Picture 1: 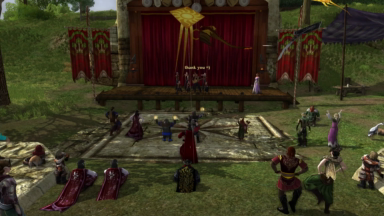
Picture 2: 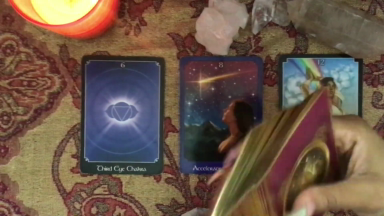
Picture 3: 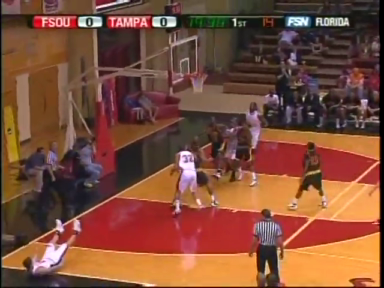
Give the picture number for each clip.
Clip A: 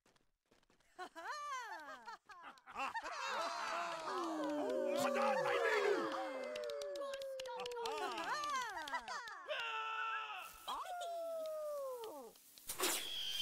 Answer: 1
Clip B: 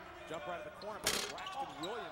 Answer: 3